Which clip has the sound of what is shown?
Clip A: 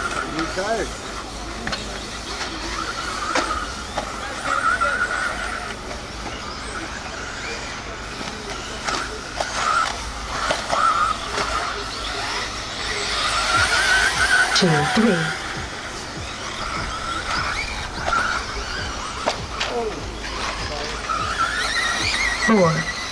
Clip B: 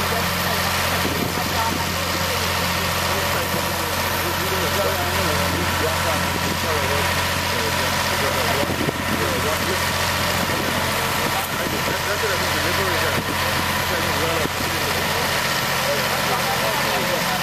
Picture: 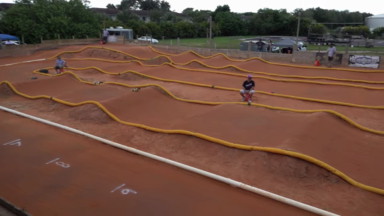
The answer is A